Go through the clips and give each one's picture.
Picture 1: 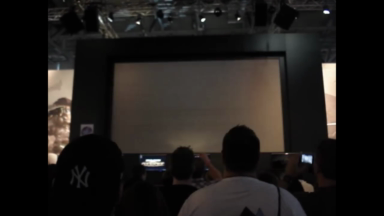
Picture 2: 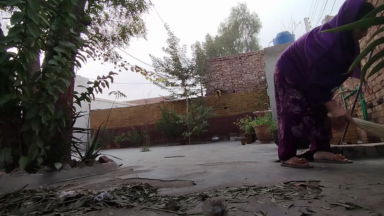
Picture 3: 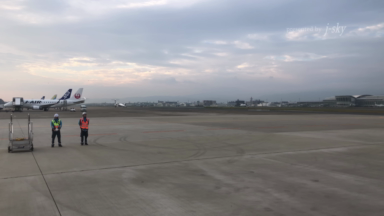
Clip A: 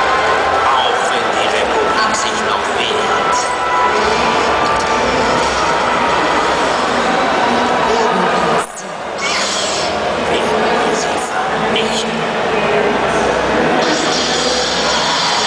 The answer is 1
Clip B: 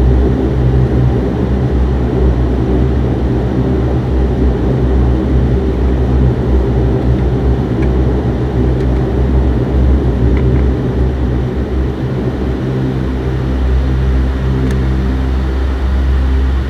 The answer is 3